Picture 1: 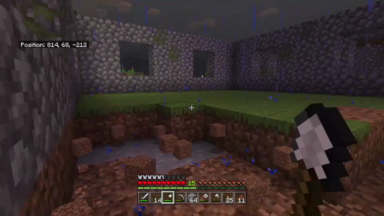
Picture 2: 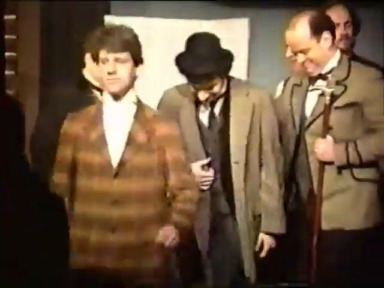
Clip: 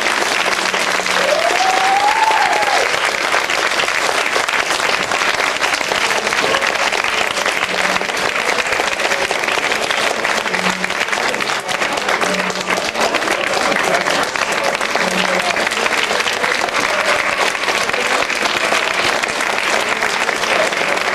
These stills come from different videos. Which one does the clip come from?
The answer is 2